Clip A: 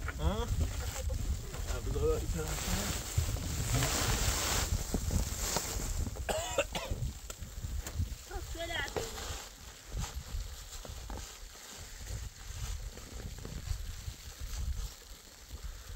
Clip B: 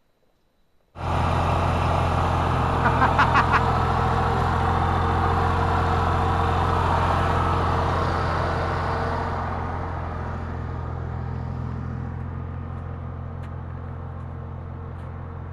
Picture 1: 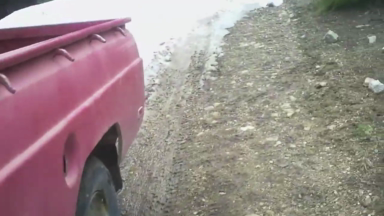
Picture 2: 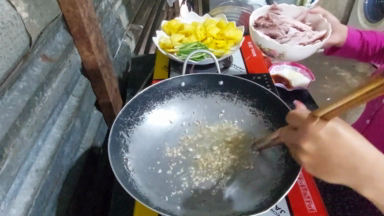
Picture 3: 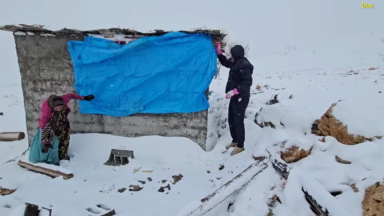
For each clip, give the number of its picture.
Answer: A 3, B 1